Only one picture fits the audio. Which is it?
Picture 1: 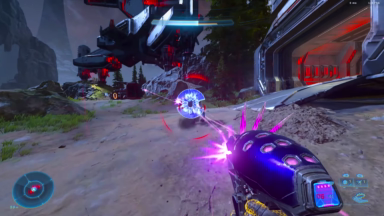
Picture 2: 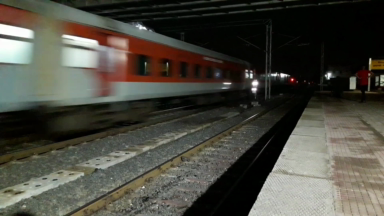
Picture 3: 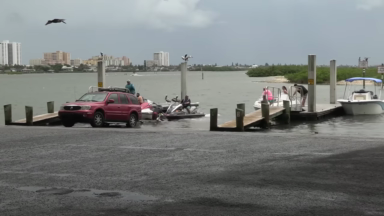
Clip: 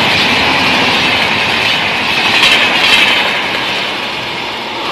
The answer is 2